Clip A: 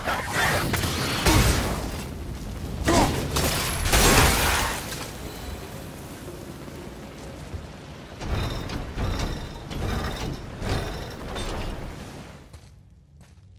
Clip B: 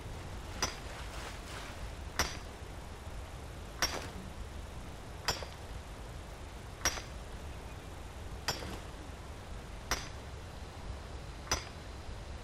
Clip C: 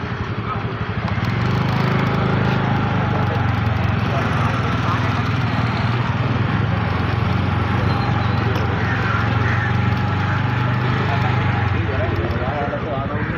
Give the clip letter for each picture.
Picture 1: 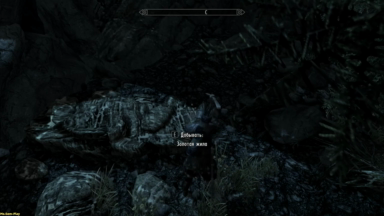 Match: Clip B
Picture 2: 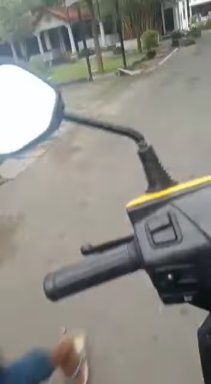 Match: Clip C